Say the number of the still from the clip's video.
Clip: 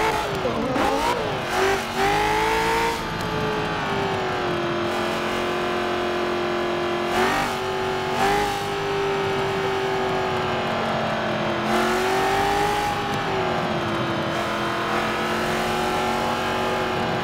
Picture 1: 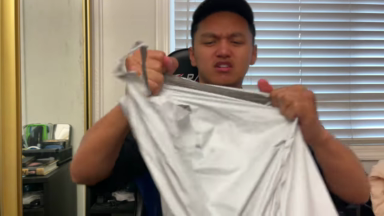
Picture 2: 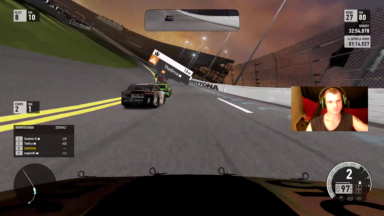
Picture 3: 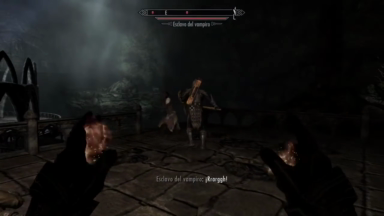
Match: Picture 2